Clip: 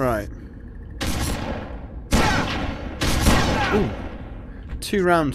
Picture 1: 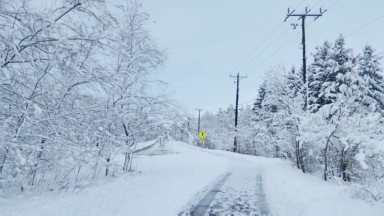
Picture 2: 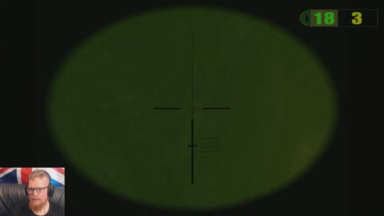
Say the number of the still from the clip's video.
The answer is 2